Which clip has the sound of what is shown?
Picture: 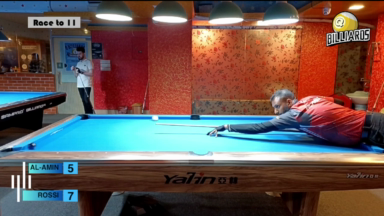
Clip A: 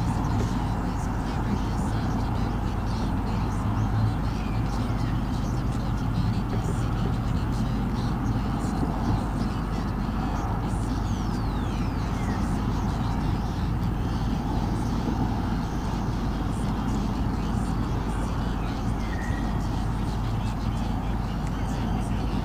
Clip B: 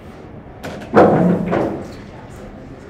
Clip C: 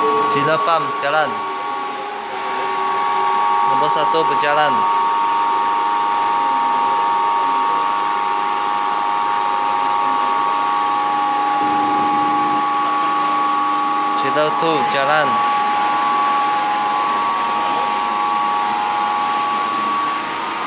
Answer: B